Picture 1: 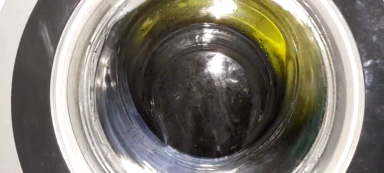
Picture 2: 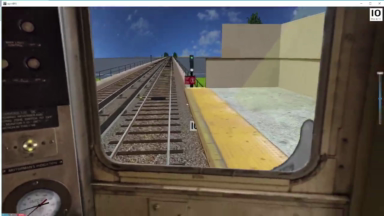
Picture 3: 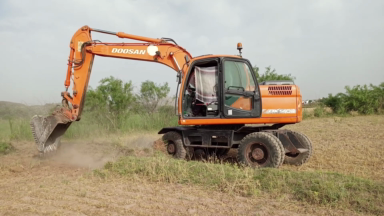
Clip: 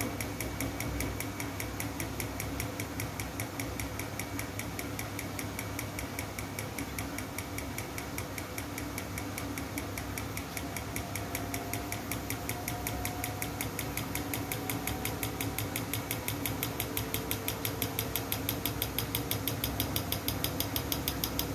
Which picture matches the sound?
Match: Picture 1